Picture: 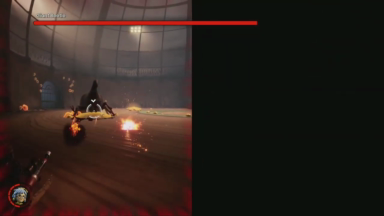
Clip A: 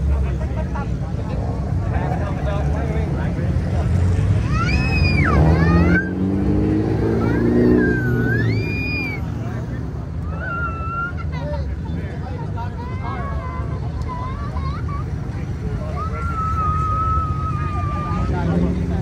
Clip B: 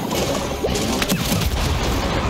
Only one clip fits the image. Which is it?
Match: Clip B